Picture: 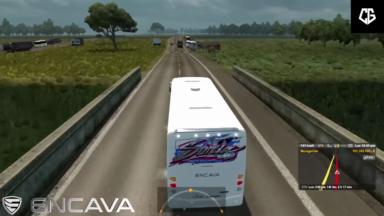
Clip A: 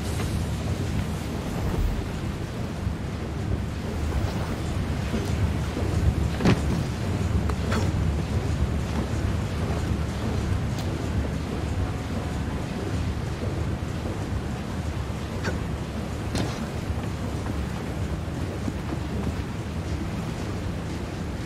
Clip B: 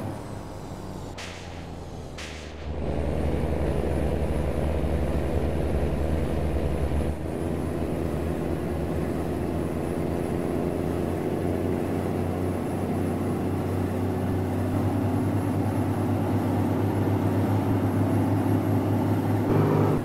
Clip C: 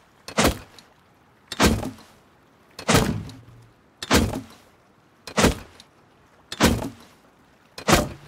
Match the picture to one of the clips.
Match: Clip B